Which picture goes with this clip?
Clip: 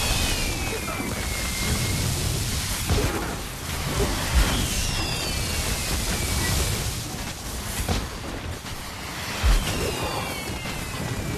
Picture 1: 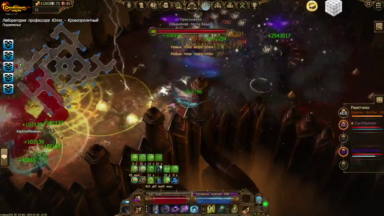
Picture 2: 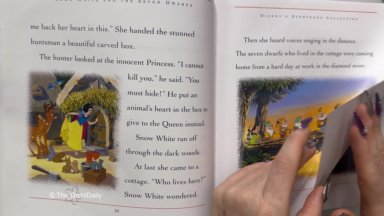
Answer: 1